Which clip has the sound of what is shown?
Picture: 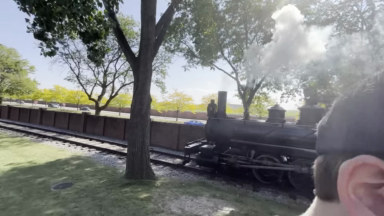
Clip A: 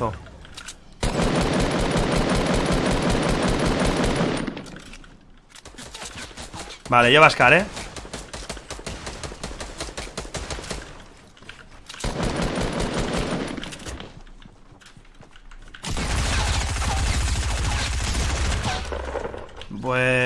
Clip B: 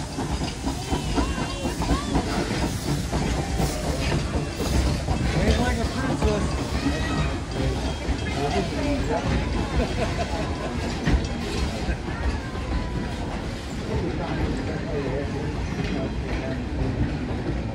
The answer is B